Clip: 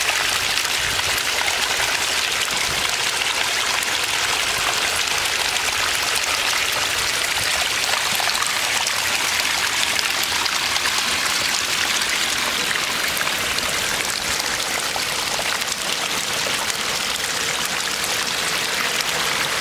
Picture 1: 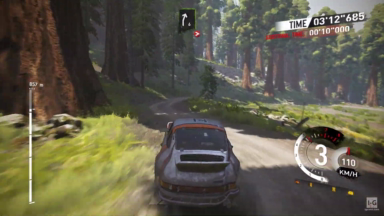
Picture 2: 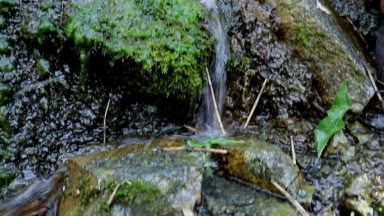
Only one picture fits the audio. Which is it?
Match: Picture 2